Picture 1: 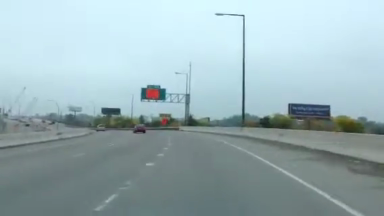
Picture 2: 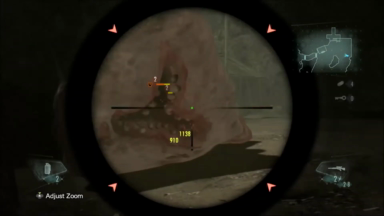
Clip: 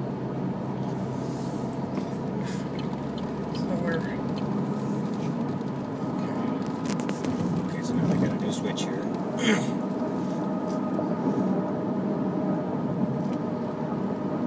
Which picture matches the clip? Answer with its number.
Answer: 1